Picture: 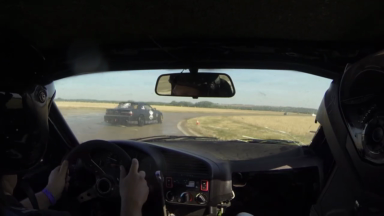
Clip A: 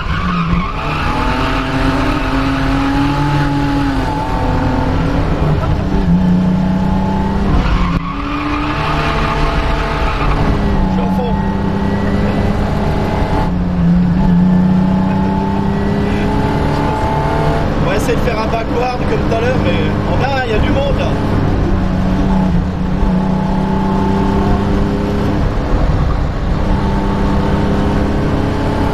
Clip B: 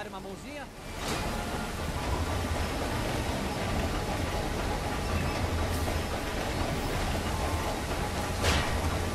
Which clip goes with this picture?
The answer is A